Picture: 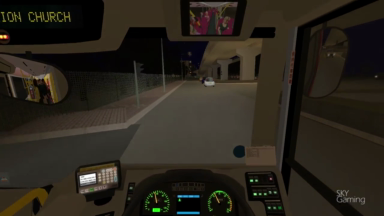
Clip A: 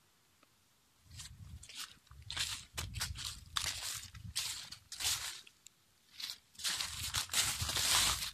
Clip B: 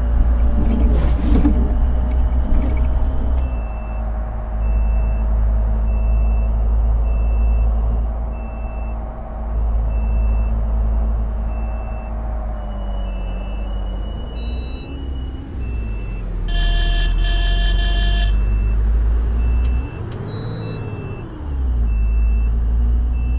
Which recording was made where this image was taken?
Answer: B